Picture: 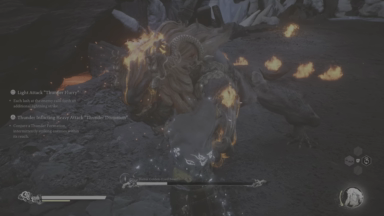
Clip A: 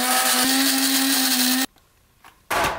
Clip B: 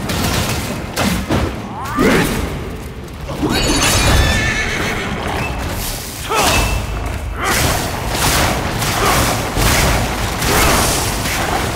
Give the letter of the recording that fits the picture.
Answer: B